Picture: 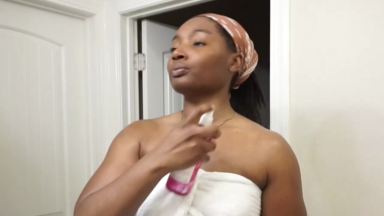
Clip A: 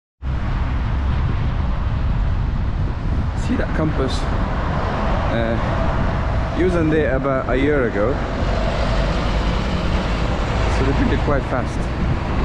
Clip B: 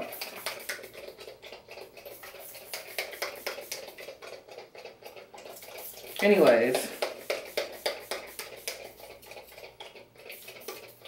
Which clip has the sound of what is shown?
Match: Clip B